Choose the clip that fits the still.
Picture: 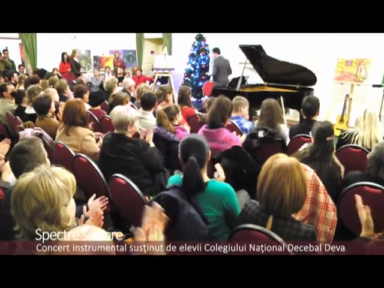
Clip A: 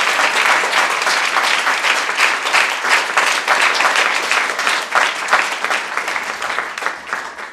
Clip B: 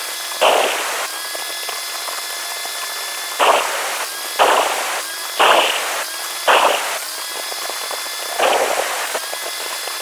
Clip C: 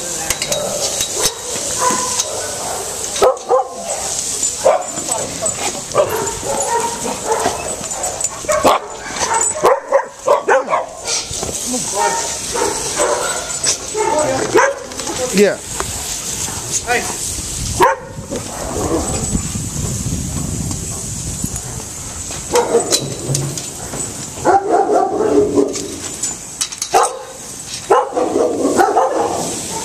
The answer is A